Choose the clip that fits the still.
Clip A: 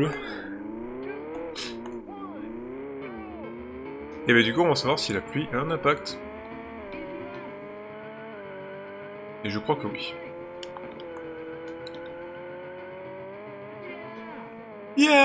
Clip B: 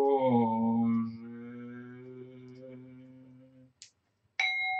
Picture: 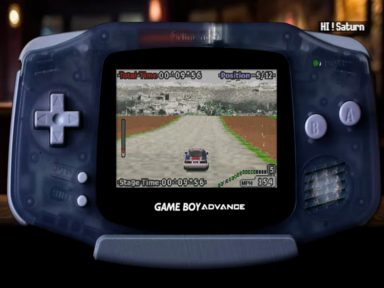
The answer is A